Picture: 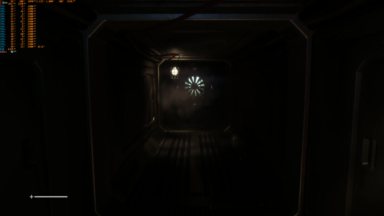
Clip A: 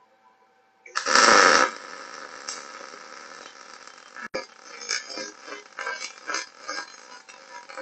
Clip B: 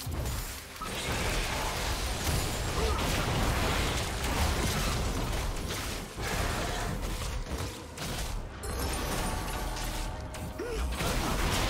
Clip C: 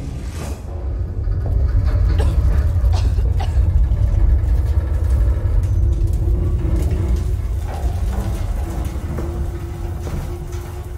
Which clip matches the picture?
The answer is C